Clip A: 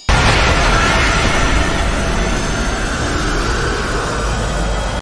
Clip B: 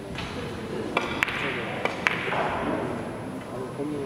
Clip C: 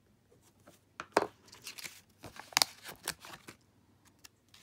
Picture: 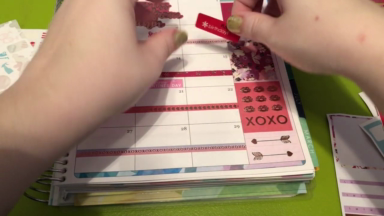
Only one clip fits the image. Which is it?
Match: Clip C